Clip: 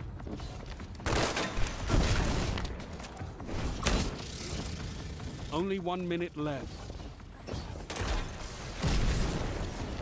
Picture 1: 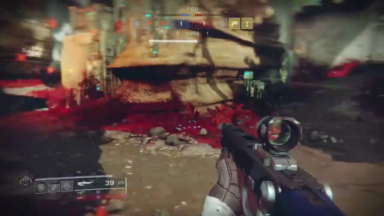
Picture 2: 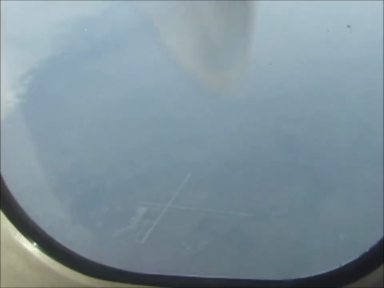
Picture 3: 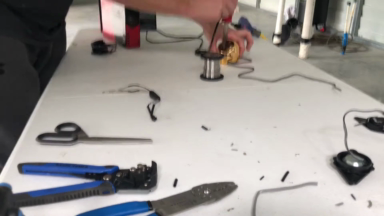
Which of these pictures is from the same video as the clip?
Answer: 1